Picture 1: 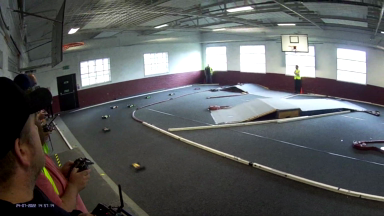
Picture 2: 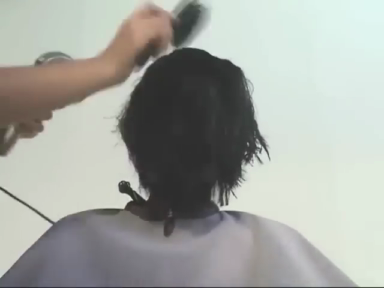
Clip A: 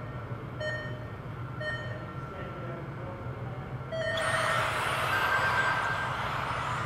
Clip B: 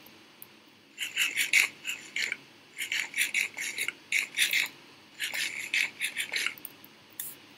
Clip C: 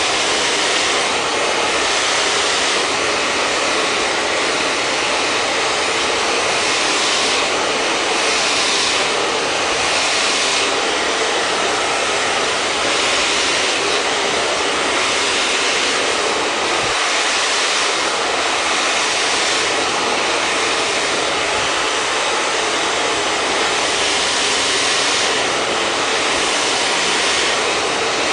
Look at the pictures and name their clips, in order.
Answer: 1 A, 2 C